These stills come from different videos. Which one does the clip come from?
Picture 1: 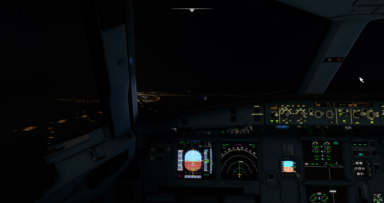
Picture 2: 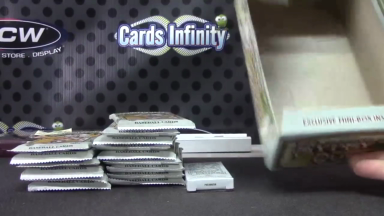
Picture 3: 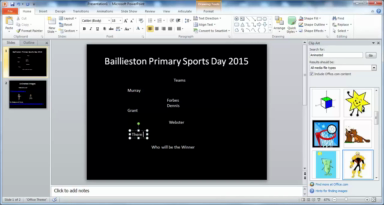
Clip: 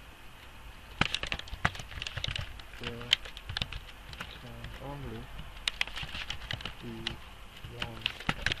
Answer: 3